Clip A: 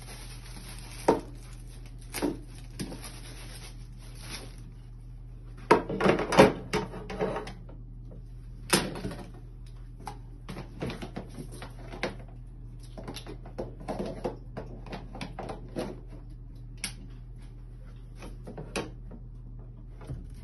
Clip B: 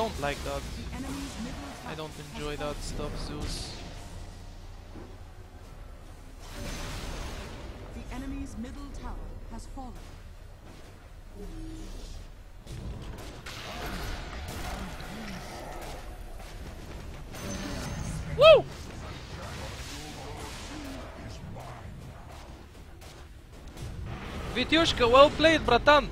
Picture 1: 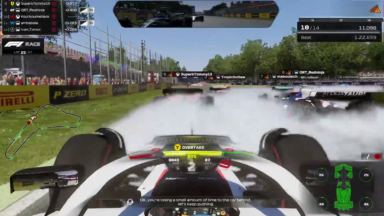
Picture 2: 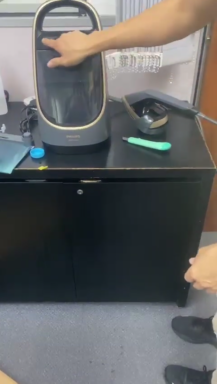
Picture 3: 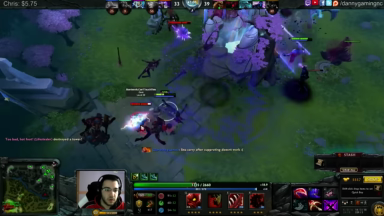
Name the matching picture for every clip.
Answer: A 2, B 3